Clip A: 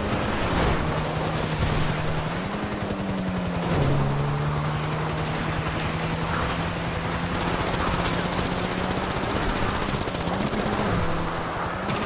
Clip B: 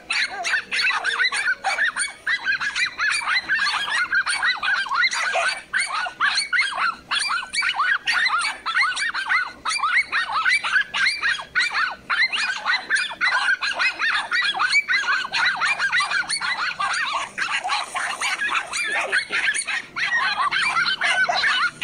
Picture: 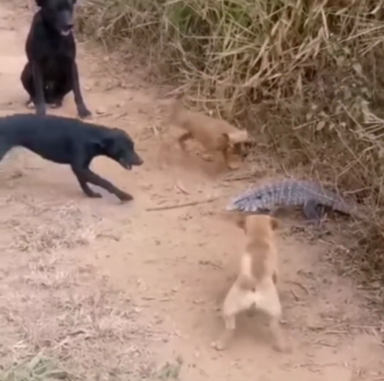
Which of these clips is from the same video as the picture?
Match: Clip B